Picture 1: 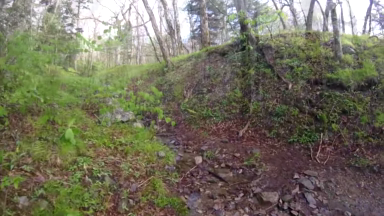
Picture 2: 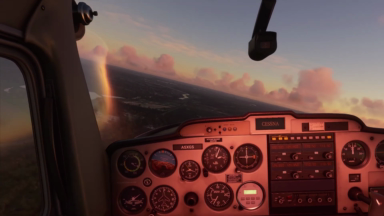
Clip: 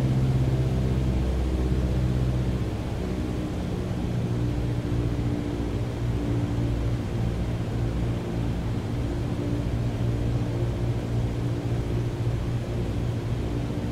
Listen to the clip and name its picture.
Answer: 2